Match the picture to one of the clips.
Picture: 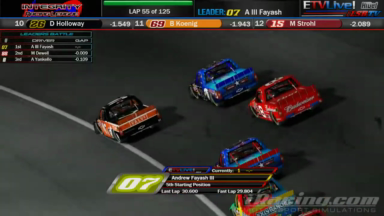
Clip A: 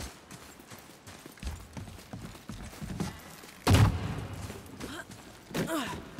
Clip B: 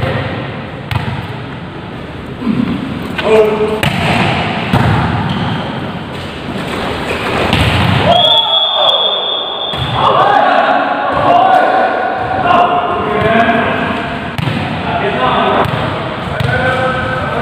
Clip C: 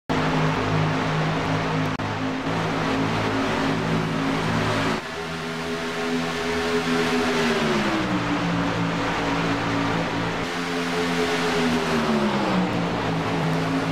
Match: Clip C